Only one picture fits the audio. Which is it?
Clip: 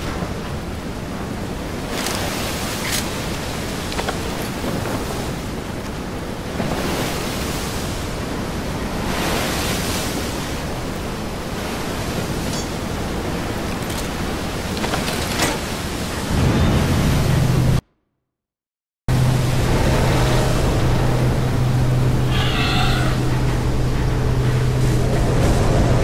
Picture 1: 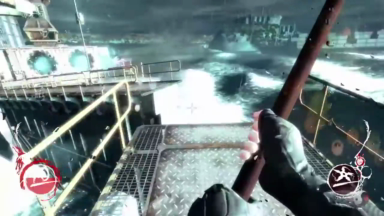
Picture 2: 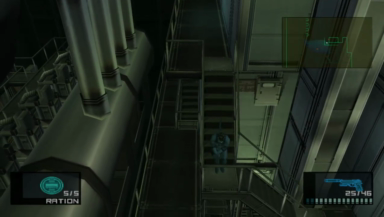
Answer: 1